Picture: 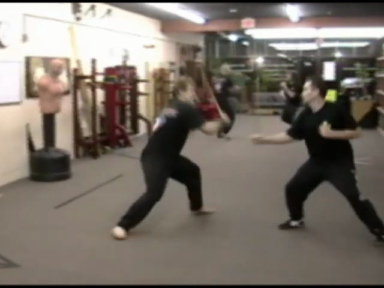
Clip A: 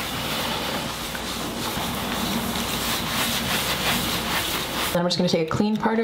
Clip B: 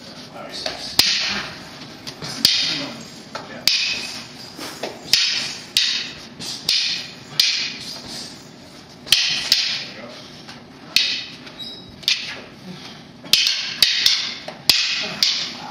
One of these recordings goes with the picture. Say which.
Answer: B